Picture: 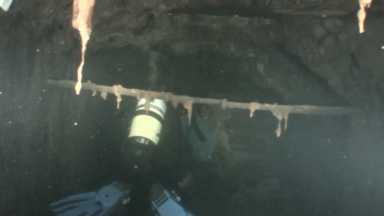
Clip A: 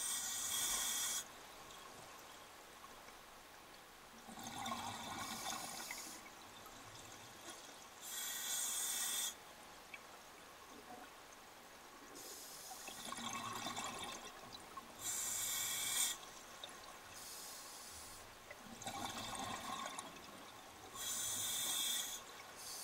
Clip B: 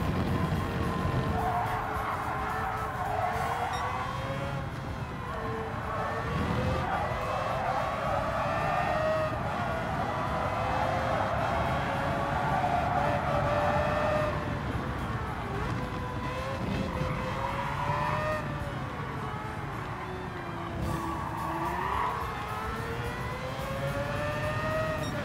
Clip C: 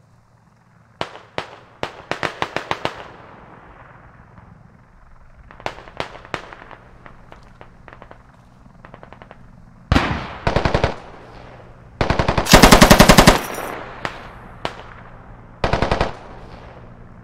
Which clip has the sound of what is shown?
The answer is A